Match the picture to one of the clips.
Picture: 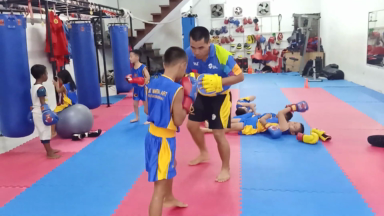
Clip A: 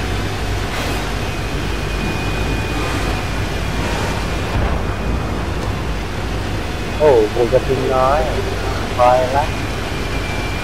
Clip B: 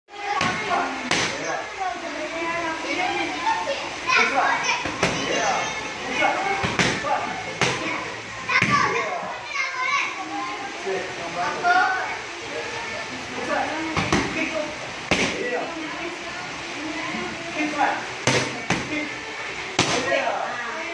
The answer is B